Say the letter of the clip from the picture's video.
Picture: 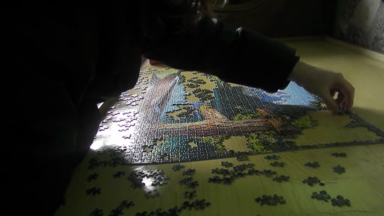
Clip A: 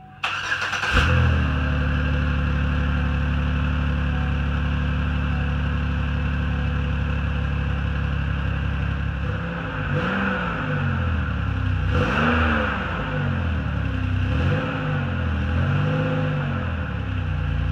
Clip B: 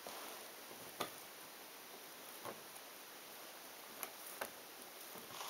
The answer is B